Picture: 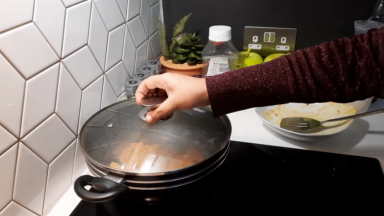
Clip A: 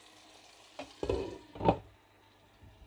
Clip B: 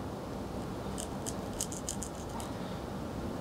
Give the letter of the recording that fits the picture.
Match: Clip A